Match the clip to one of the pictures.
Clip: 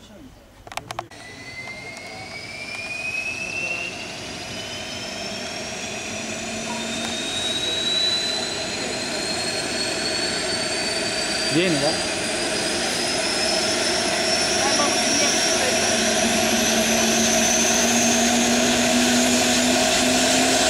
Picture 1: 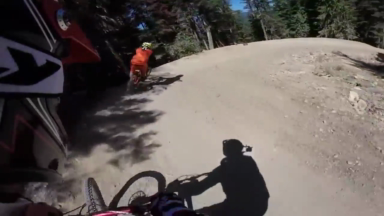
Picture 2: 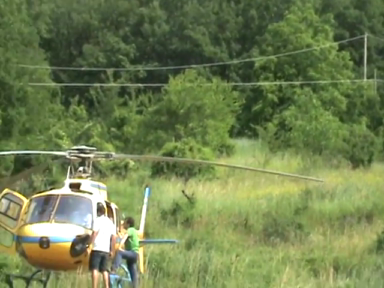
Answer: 2